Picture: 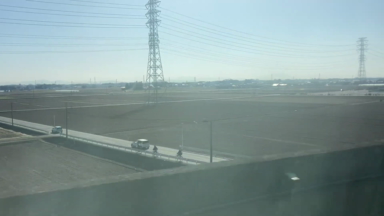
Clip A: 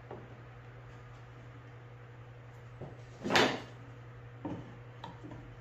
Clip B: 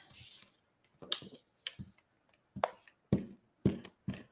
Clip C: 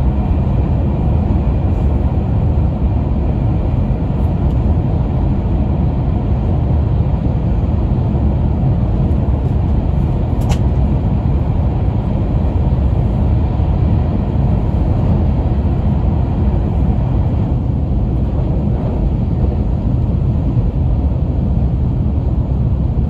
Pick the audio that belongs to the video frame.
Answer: C